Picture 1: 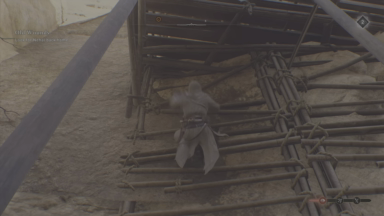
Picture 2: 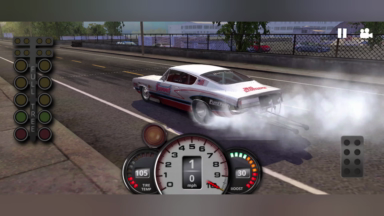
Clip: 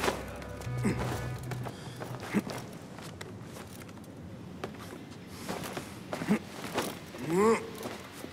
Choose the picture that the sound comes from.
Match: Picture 1